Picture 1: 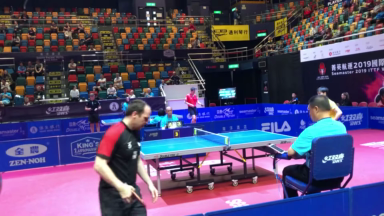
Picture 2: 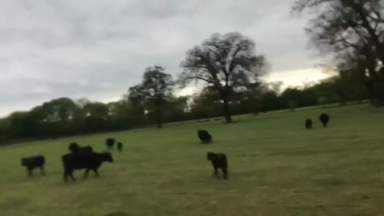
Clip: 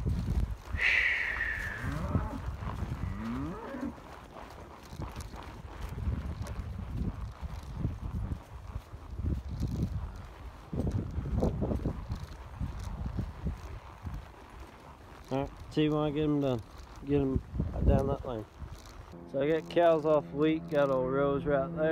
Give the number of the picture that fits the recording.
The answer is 2